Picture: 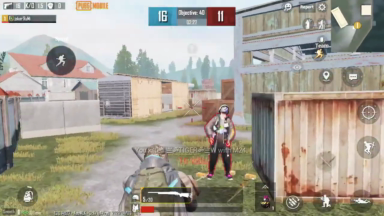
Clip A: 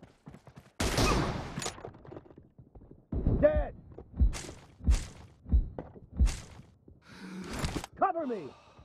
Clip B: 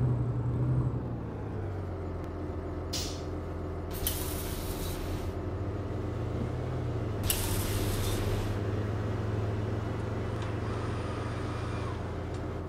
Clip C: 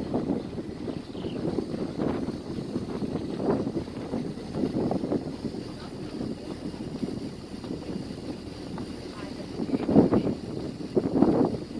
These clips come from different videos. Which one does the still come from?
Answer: A